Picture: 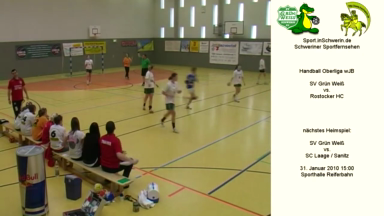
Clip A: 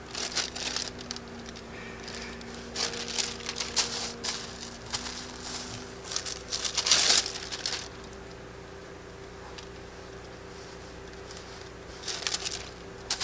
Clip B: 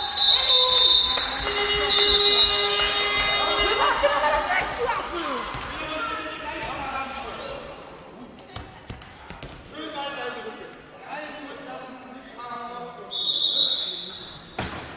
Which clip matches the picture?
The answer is B